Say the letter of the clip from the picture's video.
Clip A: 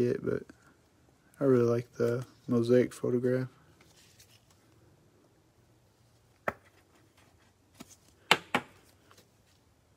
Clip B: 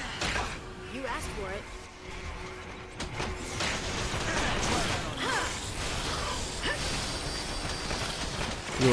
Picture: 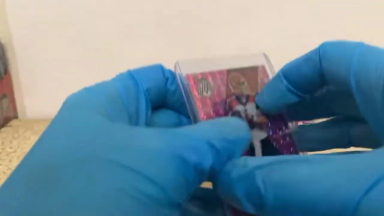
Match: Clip A